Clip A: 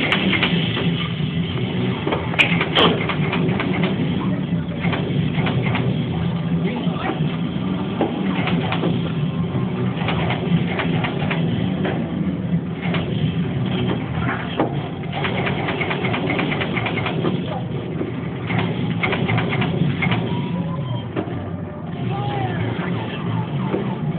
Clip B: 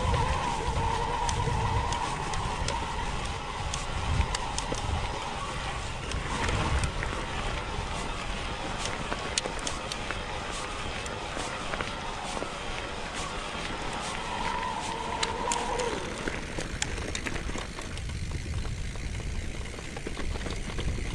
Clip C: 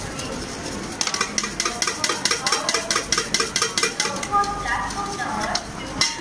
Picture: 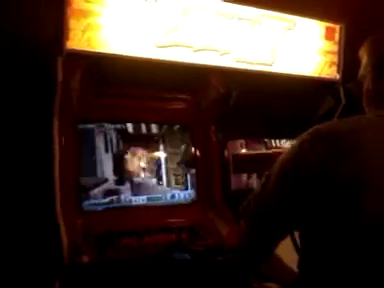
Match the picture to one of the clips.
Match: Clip A